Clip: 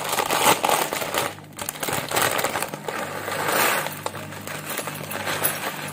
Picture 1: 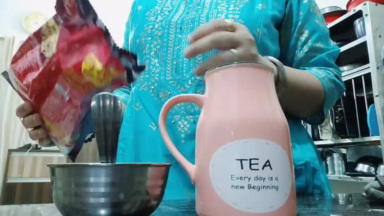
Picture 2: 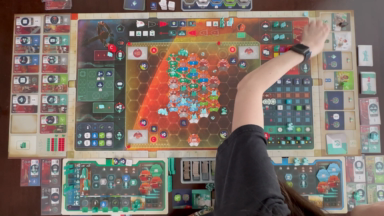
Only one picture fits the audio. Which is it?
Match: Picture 1